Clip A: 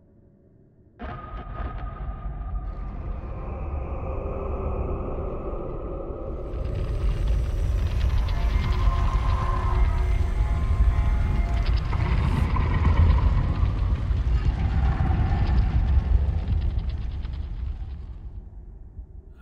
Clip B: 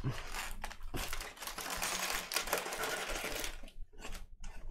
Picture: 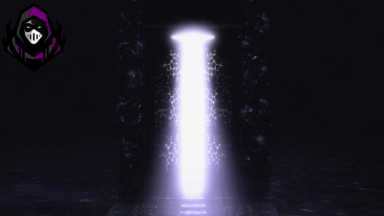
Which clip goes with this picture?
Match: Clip A